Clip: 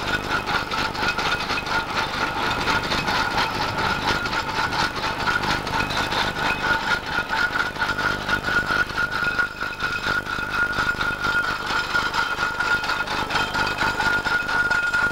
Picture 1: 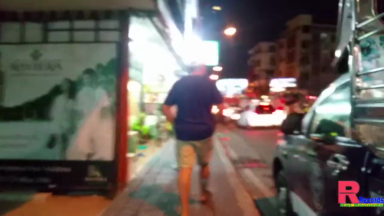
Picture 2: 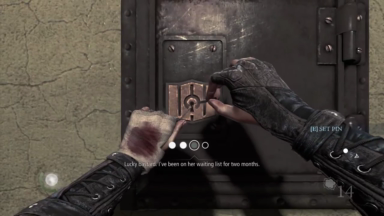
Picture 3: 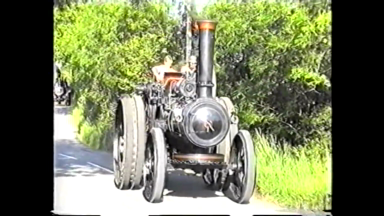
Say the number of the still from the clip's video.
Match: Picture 3